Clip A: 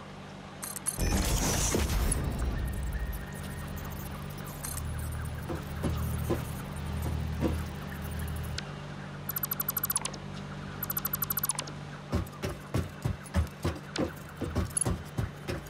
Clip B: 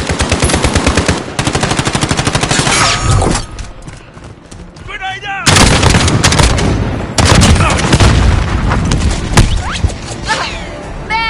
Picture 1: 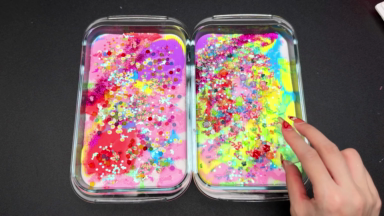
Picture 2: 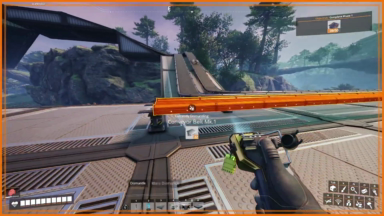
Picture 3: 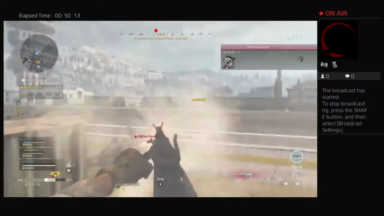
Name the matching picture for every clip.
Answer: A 2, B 3